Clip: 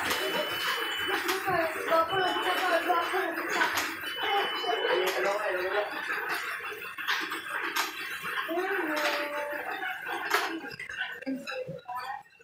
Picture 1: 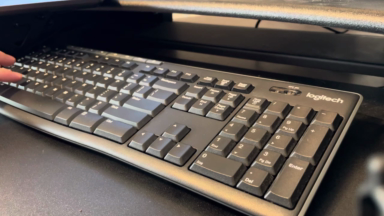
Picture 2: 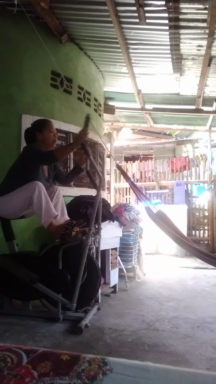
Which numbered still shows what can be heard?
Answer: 2